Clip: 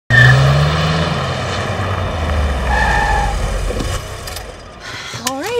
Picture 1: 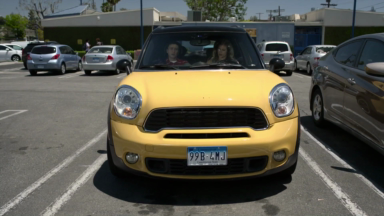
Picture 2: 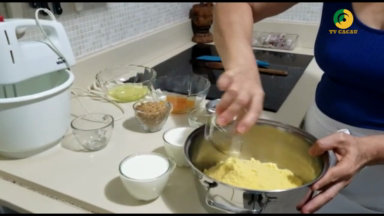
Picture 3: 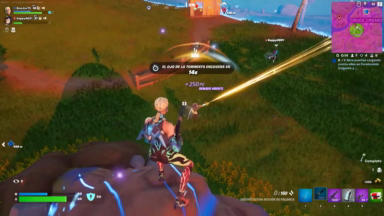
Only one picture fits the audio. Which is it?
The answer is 1